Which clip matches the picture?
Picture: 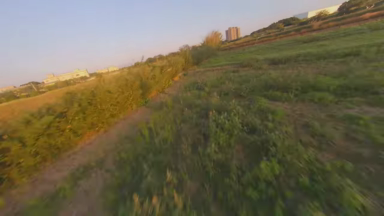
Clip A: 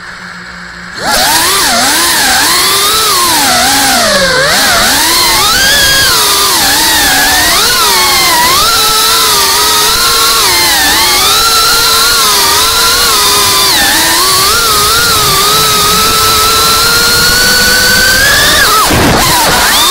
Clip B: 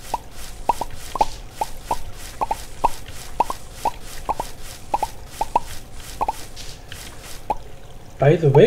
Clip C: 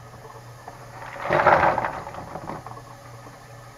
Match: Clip A